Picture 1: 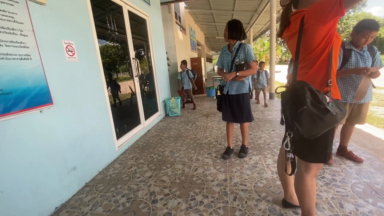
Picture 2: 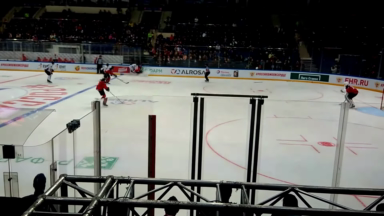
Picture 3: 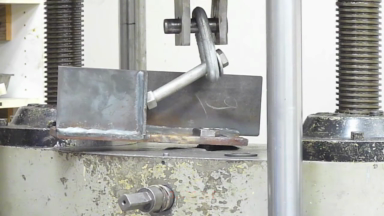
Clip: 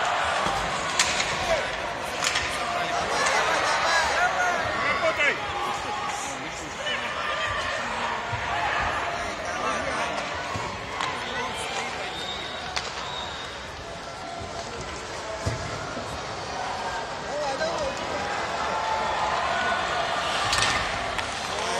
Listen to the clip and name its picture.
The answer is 2